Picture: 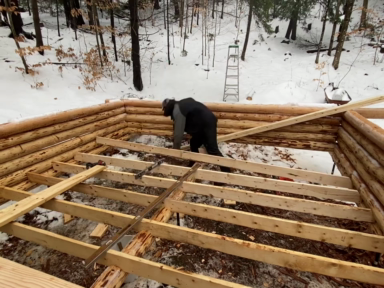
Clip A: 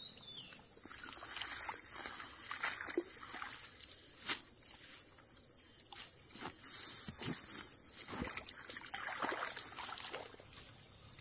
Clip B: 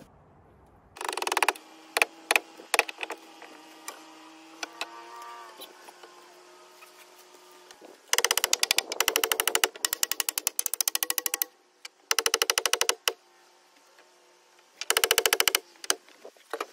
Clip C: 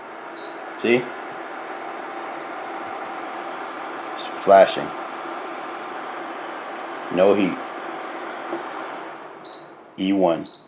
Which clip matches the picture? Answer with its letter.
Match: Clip B